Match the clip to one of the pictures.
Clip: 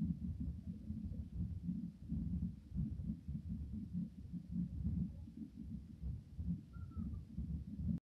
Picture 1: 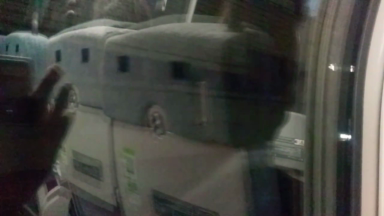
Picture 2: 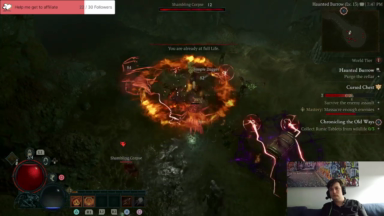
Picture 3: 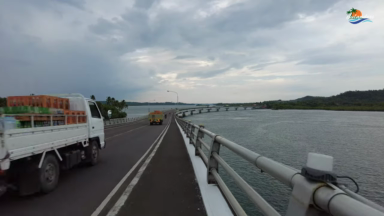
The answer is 1